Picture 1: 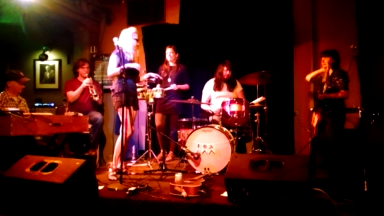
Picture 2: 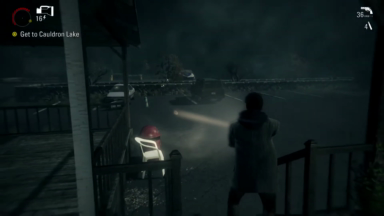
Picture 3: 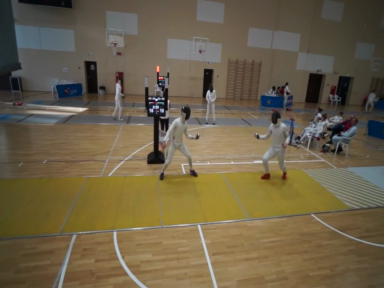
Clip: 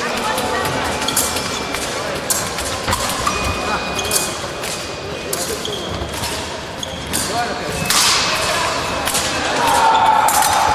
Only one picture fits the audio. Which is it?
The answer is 3